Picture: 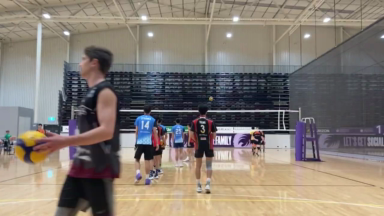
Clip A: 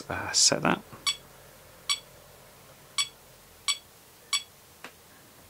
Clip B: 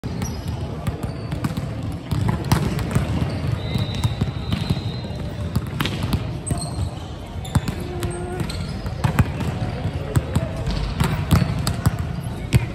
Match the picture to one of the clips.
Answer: B